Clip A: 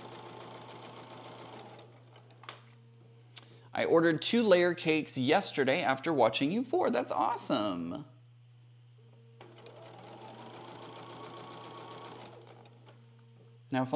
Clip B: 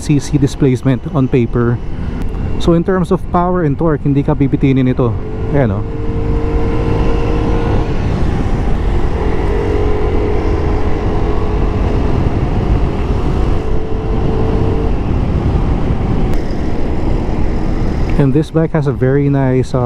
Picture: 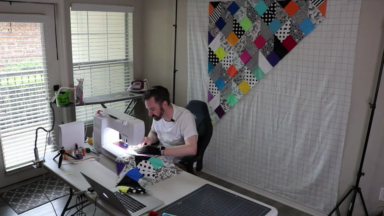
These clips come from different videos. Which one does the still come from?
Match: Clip A